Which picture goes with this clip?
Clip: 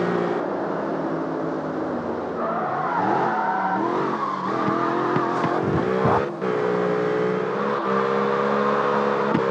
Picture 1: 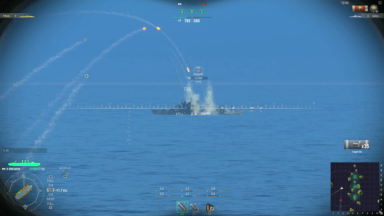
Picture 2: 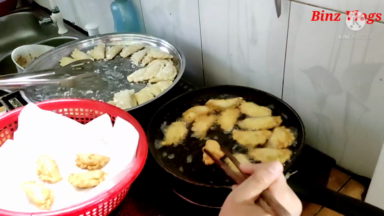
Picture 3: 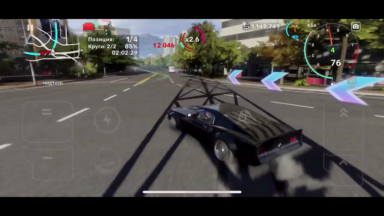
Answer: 3